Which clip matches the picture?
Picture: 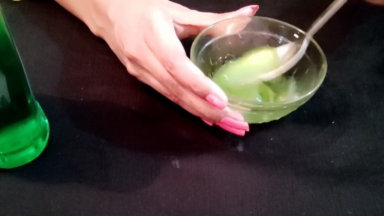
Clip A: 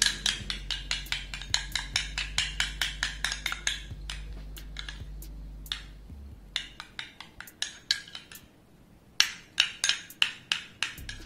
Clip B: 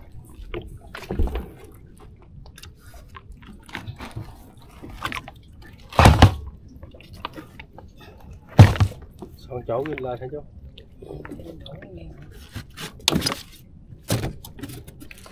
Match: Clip A